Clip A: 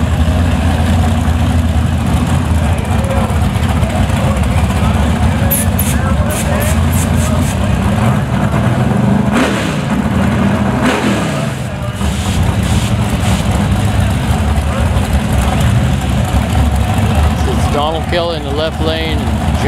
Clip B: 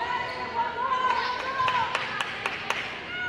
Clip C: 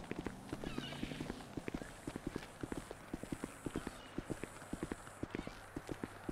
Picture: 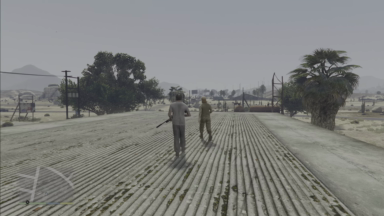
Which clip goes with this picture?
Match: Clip C